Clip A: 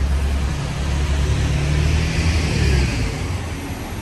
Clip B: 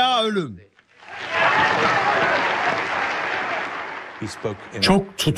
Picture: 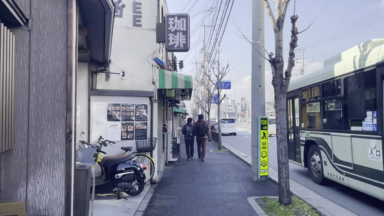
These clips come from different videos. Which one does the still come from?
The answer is A